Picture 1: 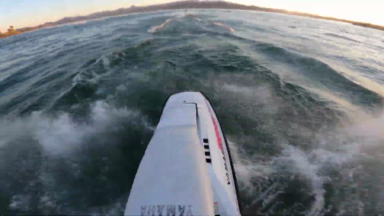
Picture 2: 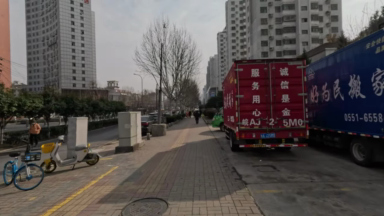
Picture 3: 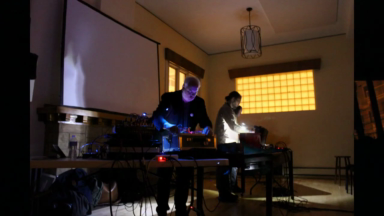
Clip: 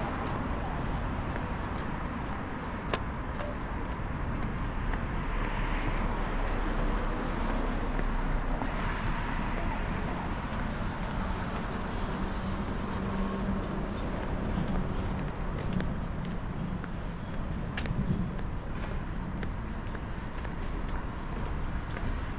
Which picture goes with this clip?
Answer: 2